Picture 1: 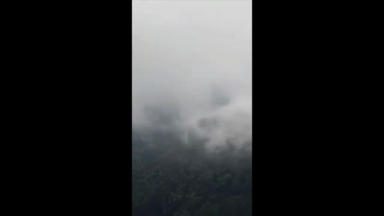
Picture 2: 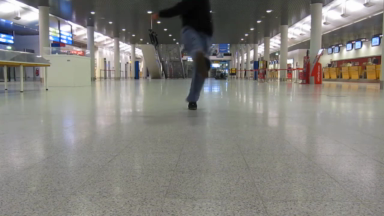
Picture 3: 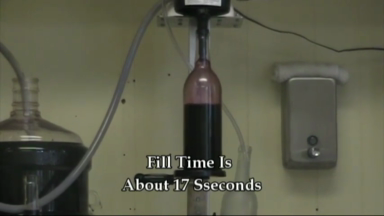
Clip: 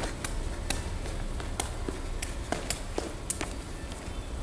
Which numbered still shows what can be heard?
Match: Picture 2